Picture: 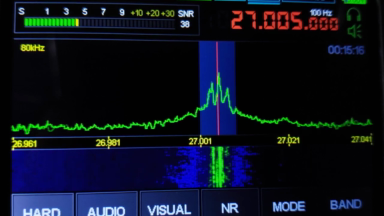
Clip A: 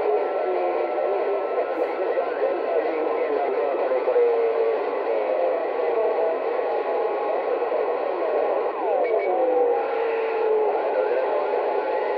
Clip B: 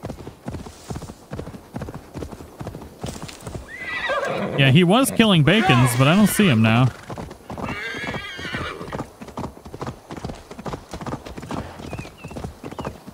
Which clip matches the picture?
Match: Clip A